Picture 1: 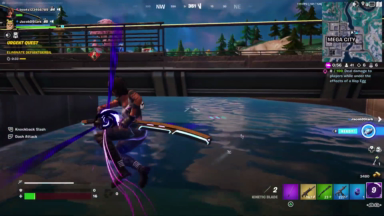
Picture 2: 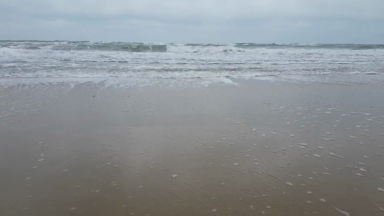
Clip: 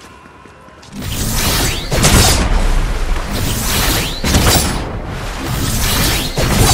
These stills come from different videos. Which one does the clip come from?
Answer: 1